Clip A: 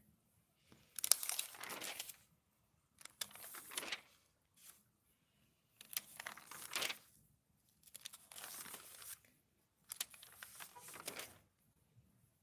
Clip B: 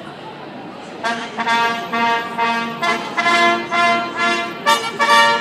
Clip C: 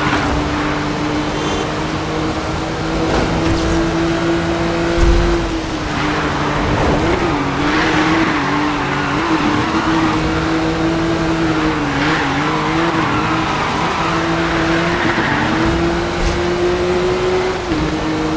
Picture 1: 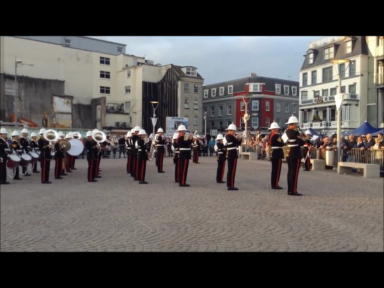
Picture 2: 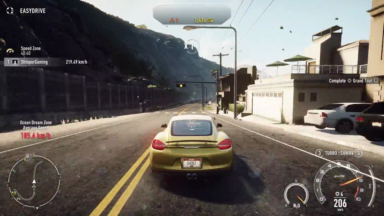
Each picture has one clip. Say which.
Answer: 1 B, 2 C